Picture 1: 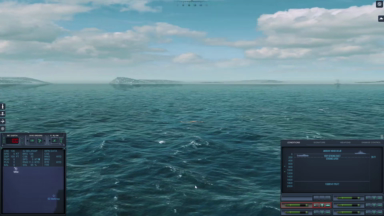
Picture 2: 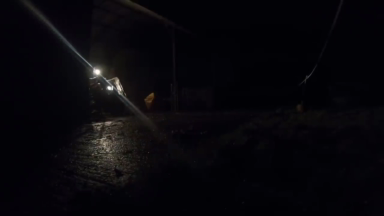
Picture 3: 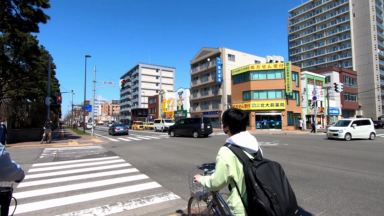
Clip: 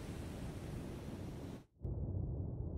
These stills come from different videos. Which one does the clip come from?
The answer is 1